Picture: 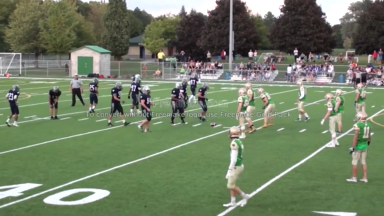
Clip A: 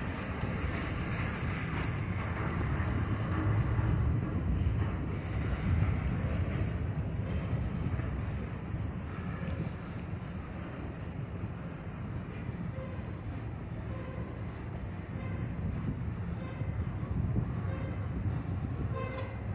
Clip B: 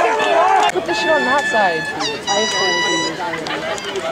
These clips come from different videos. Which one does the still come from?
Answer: B